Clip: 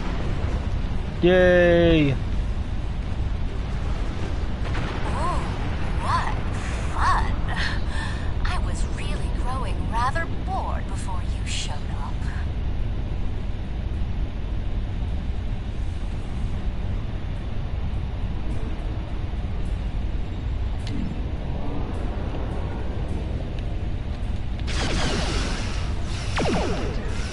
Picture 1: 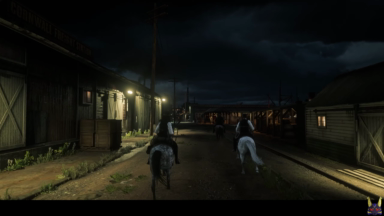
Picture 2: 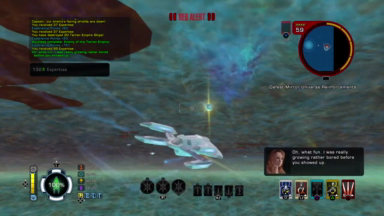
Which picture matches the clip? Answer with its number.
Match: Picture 2